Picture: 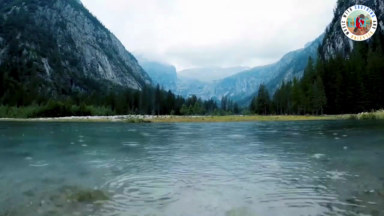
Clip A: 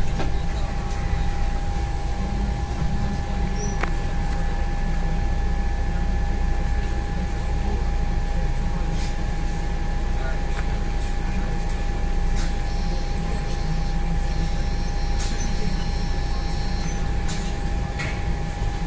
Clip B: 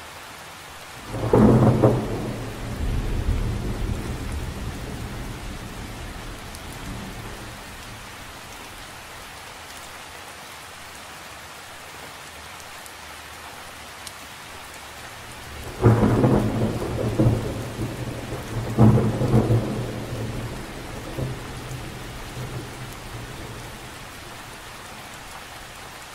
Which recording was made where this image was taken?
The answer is B